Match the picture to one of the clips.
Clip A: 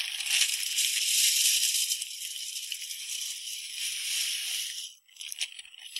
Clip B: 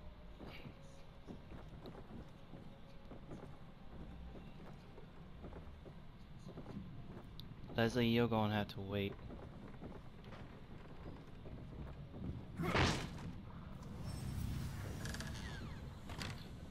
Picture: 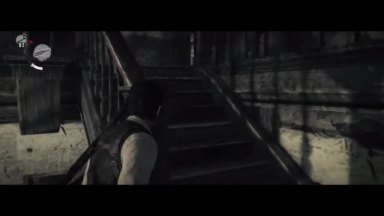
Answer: B